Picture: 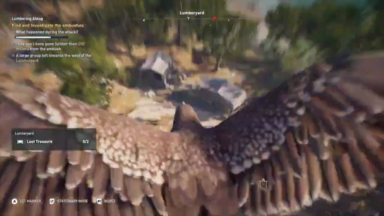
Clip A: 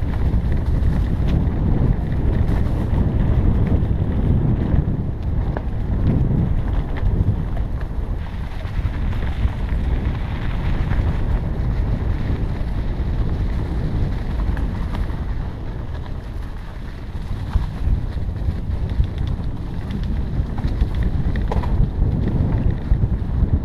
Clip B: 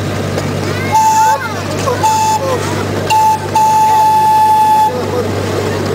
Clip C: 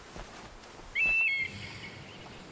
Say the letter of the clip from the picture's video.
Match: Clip C